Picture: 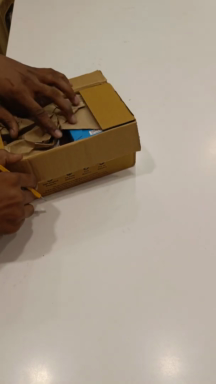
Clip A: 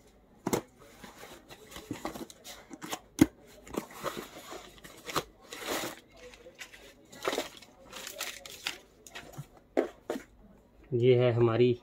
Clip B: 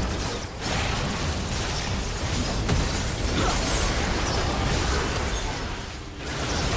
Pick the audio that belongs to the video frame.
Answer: A